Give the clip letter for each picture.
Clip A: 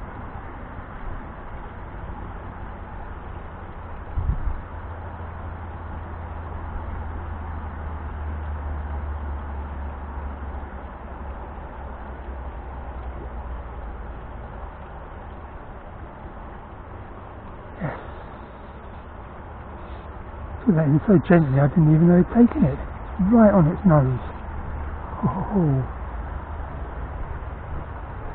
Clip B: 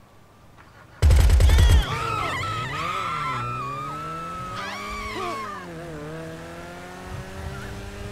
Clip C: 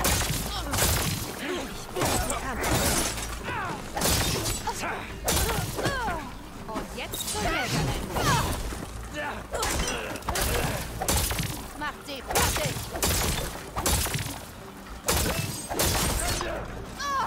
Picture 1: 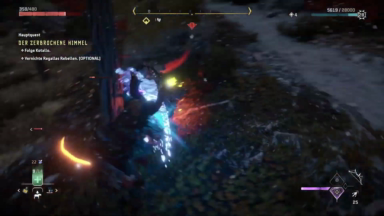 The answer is C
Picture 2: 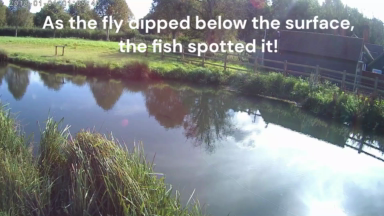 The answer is A